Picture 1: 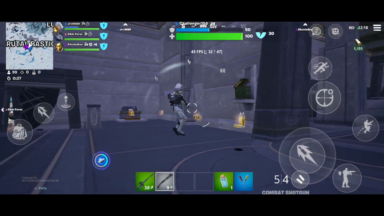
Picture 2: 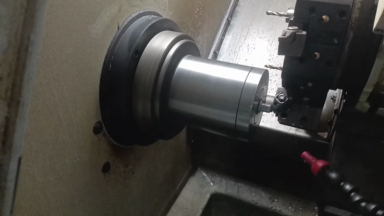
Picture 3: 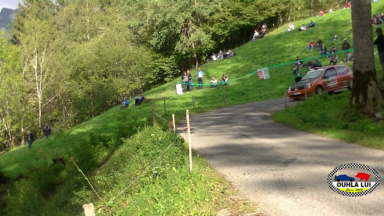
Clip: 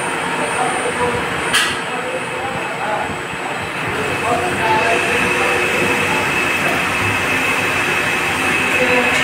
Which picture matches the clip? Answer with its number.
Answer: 2